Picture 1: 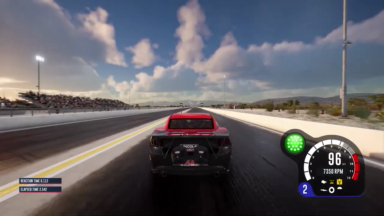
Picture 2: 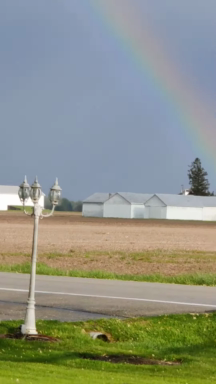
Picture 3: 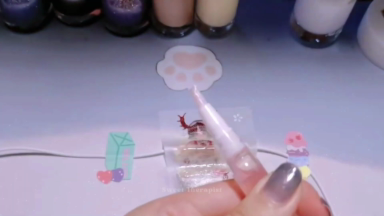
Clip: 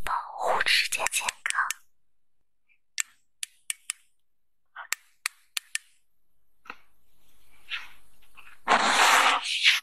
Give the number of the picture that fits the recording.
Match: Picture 3